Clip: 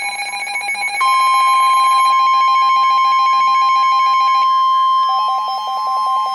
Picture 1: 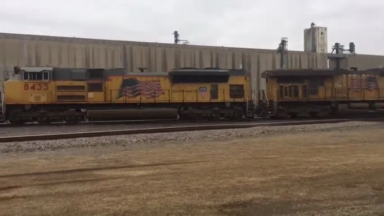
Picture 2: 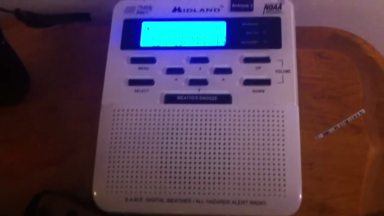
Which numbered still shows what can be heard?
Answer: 2